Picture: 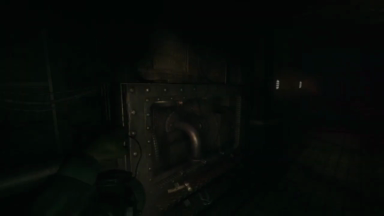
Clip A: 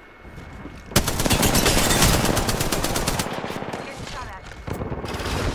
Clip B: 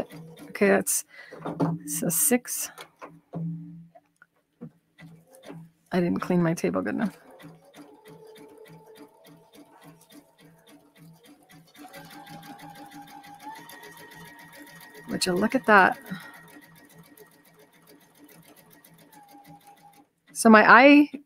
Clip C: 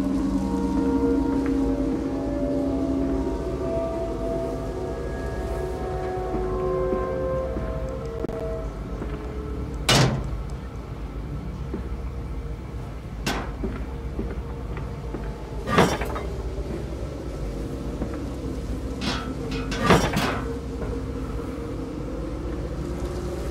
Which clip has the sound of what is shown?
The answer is C